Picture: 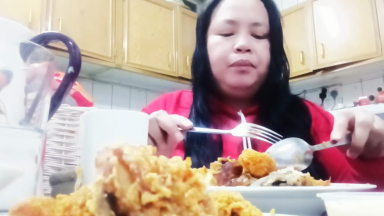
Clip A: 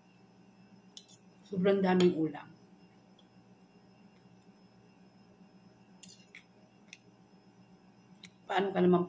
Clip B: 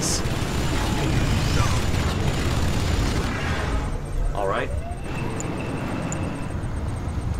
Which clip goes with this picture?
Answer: A